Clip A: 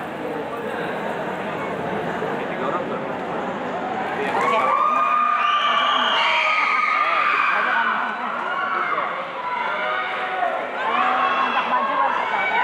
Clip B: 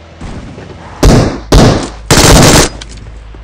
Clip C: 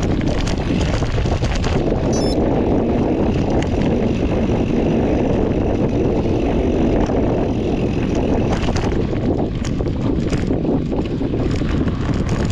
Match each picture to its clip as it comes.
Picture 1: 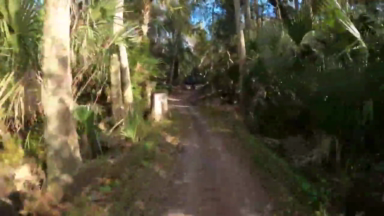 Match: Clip C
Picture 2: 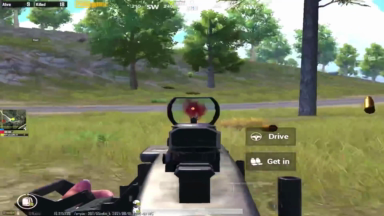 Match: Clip B